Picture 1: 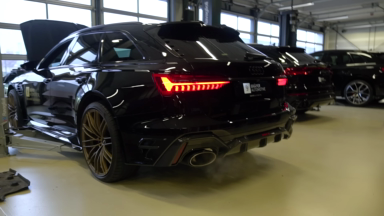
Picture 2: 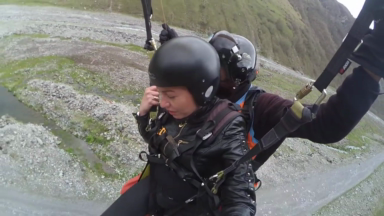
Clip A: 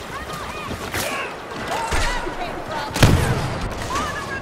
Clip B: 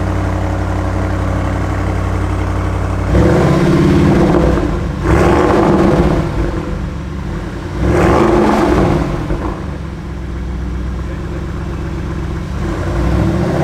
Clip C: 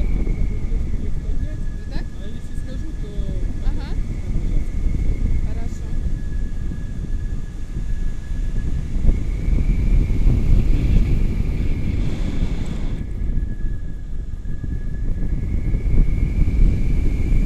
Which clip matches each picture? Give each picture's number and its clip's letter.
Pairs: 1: B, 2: C